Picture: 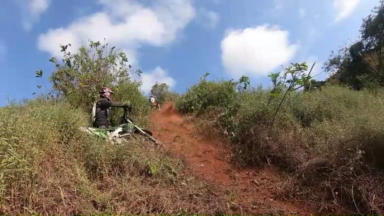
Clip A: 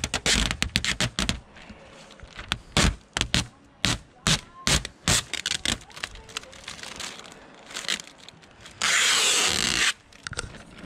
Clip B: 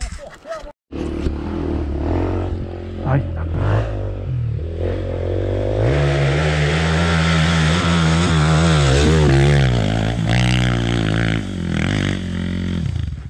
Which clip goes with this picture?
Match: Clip B